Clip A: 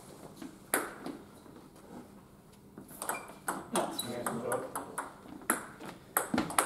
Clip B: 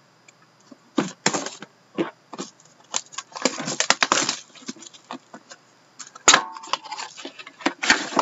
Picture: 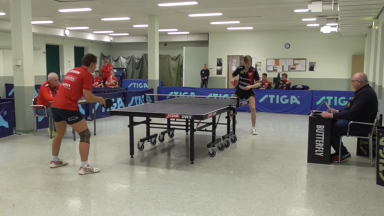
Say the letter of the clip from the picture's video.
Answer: A